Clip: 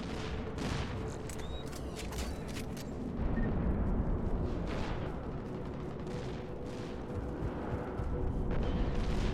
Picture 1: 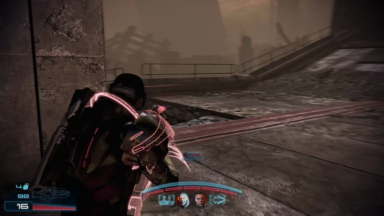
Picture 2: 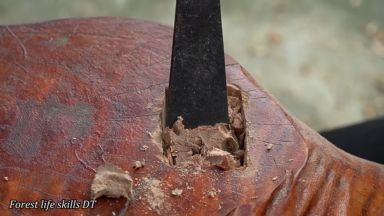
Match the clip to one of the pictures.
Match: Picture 1